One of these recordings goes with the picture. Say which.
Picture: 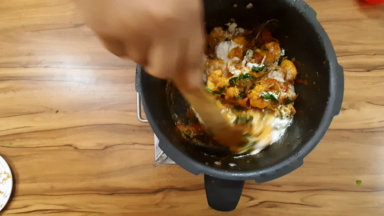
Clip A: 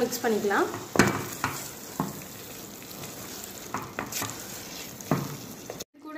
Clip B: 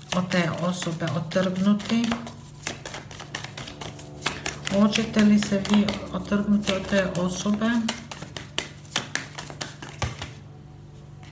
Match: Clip A